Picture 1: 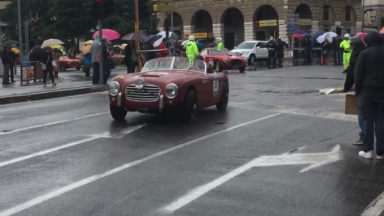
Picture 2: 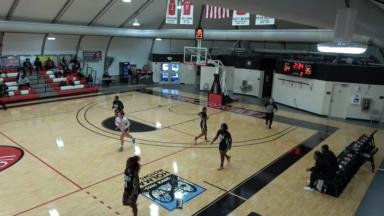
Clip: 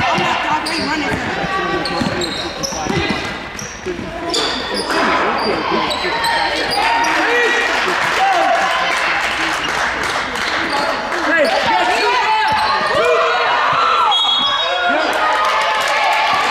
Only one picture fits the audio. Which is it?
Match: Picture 2